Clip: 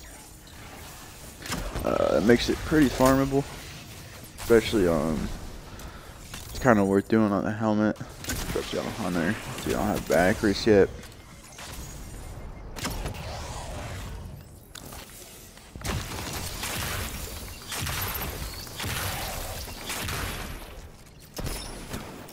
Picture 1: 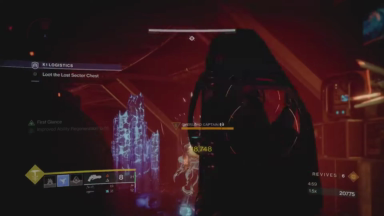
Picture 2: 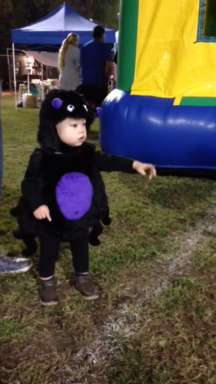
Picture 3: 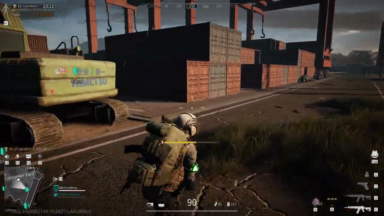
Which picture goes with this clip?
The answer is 1